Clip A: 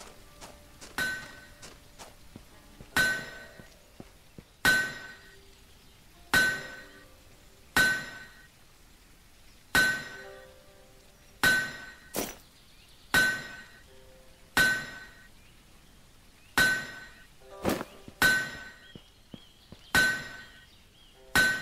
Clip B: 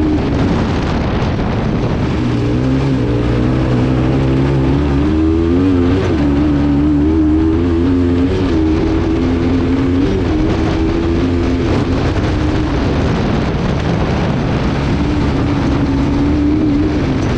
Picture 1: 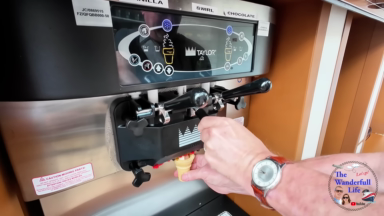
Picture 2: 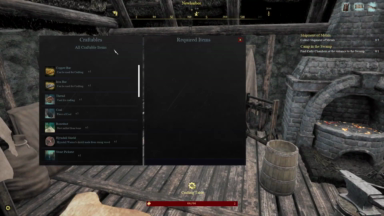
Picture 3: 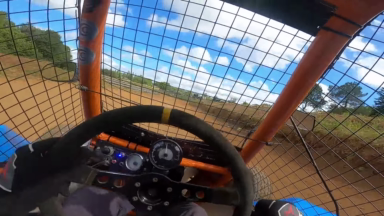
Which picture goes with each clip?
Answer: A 2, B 3